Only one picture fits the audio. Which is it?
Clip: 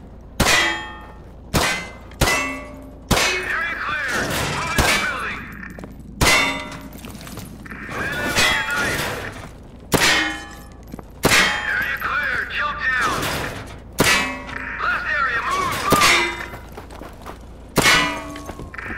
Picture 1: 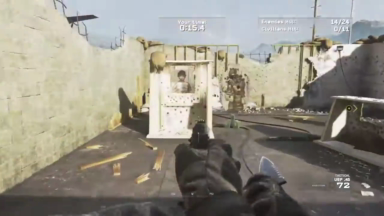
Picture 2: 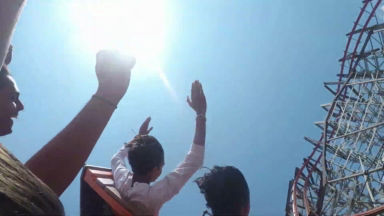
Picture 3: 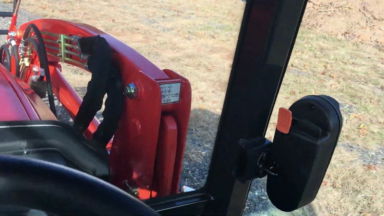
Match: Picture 1